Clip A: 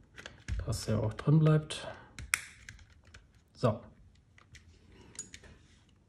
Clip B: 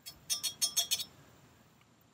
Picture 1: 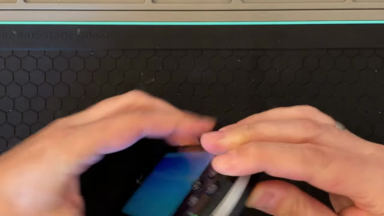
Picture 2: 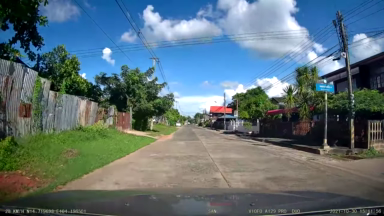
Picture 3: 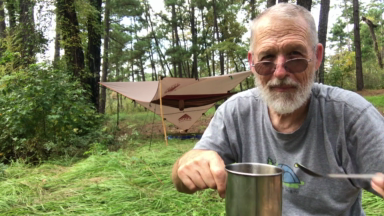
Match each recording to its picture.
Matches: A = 1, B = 3